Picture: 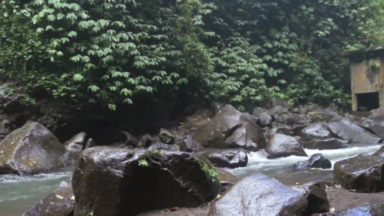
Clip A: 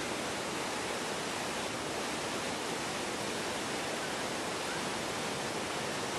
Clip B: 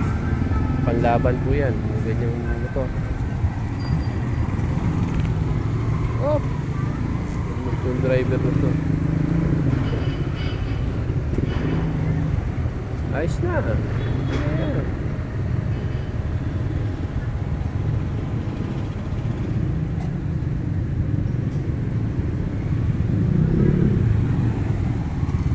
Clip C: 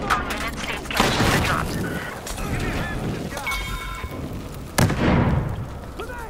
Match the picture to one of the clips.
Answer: A